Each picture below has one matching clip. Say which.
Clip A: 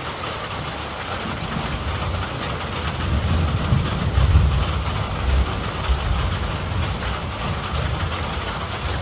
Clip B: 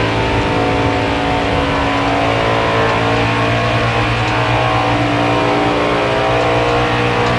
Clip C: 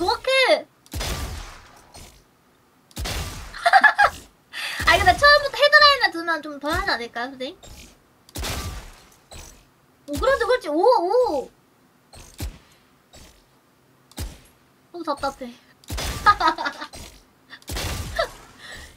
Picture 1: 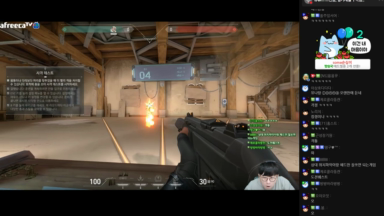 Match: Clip C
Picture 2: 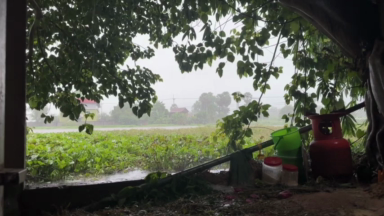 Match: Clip A